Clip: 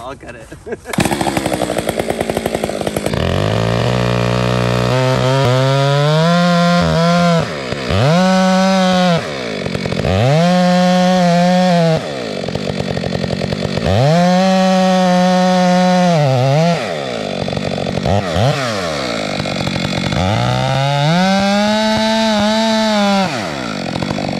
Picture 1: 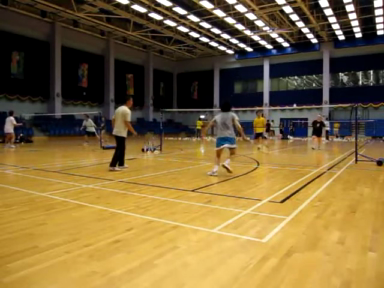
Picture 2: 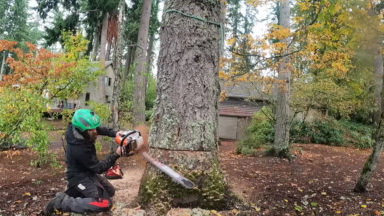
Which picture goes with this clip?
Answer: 2